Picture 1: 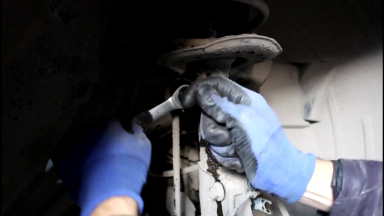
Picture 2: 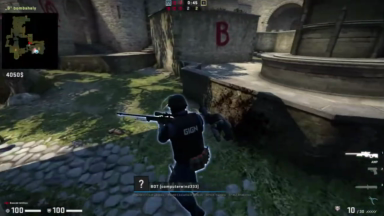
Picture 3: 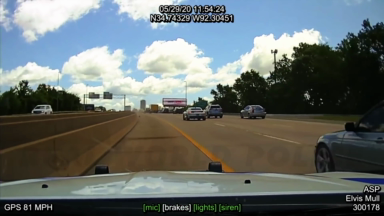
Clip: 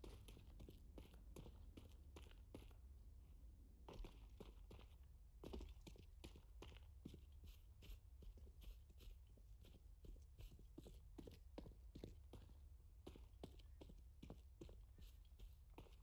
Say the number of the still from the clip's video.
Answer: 2